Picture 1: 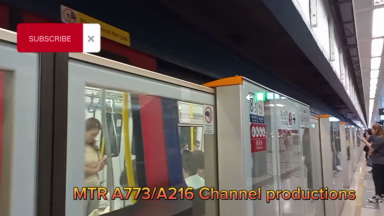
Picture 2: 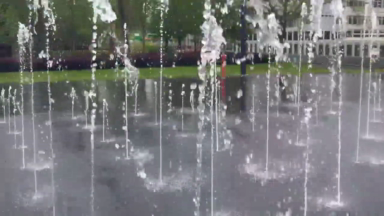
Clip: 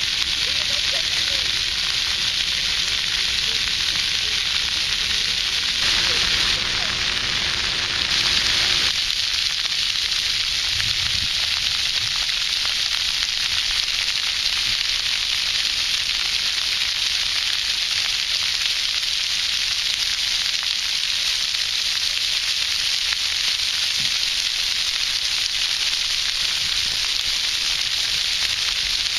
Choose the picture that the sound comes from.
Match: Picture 2